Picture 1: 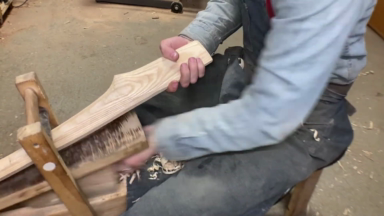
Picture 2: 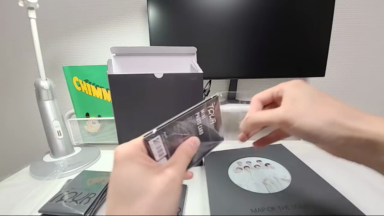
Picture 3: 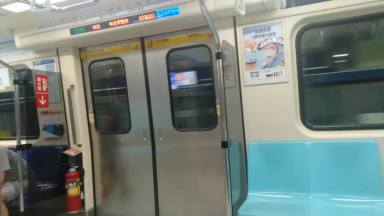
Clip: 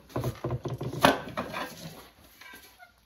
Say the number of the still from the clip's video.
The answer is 1